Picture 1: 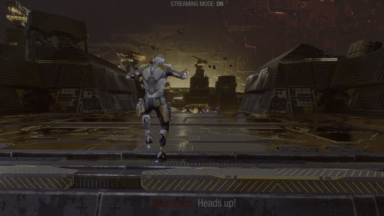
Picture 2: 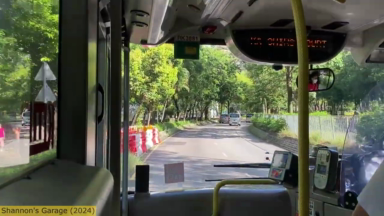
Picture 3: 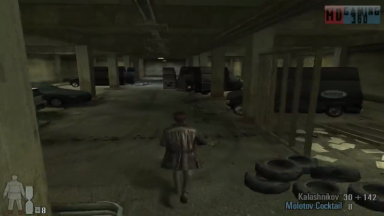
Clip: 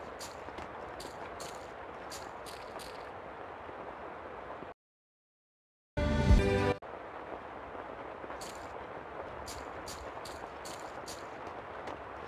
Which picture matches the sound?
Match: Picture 3